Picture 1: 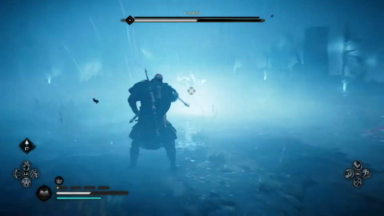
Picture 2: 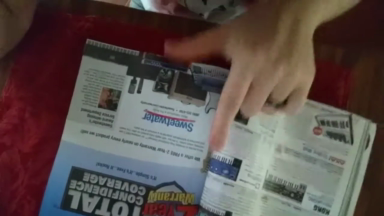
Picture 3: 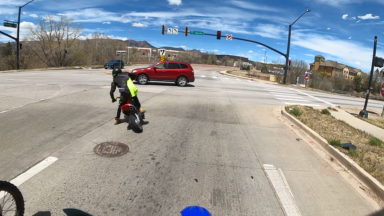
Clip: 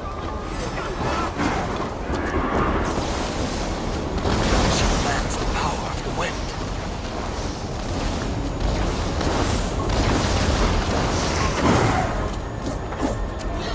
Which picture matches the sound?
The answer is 1